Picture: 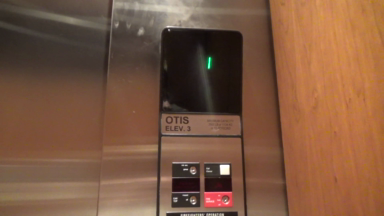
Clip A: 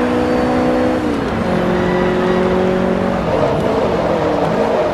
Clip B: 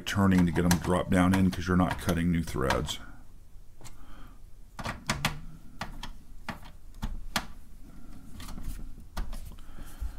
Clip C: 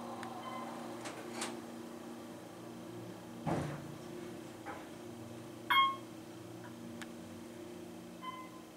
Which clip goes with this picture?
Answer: C